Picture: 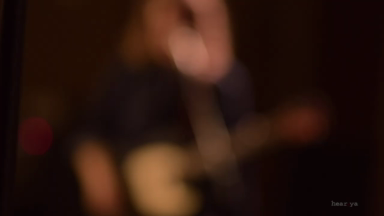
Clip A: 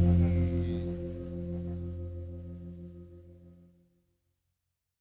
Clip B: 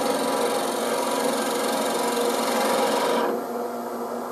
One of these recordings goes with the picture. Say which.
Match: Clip A